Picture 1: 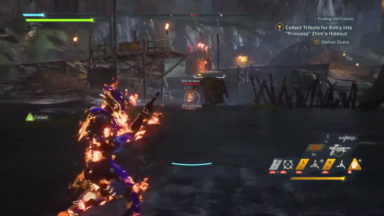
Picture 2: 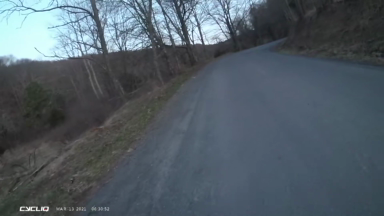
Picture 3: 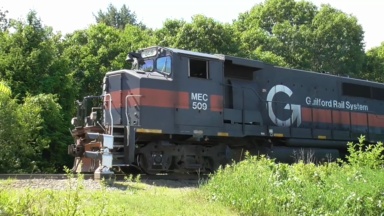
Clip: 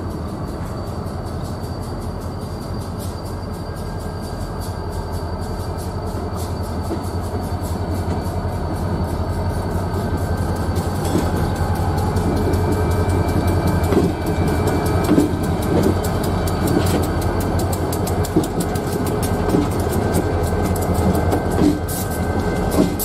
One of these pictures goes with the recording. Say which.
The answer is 3